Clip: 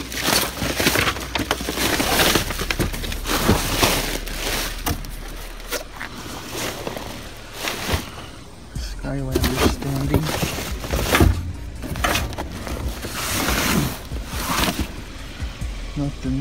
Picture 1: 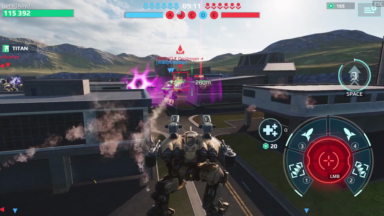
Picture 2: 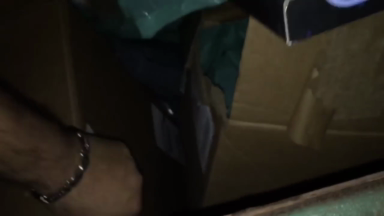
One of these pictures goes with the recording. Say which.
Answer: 2